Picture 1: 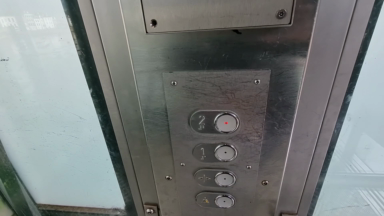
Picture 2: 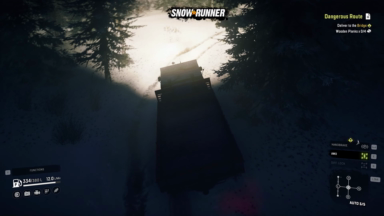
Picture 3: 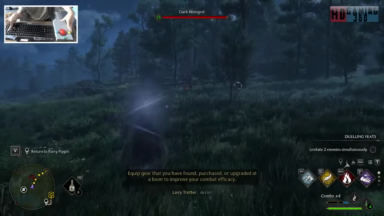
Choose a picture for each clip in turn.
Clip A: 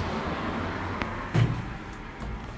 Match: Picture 1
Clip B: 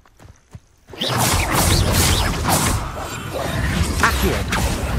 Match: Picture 3